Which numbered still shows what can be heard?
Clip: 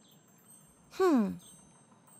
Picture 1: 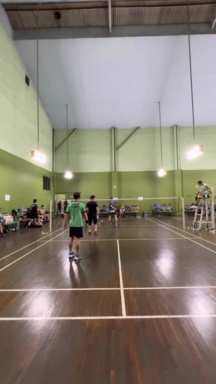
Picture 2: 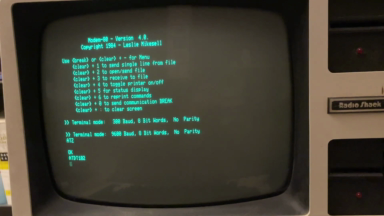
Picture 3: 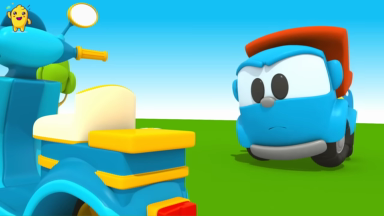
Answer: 3